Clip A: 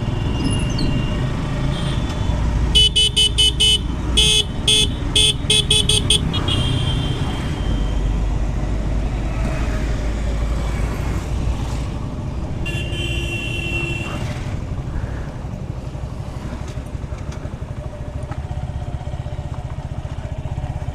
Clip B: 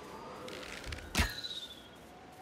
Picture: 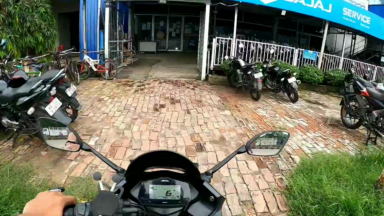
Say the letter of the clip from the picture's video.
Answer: A